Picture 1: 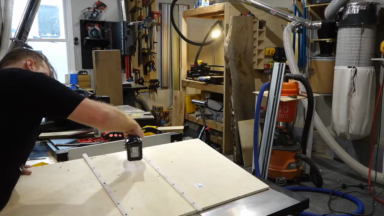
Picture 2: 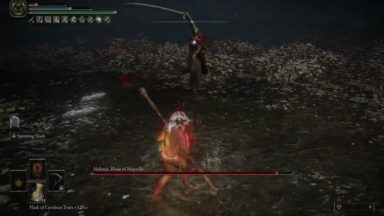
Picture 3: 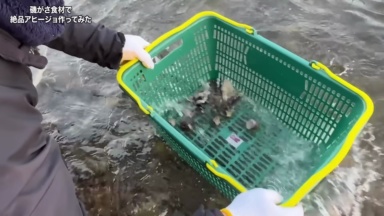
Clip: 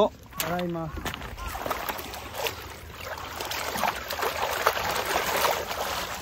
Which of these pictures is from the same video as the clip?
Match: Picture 3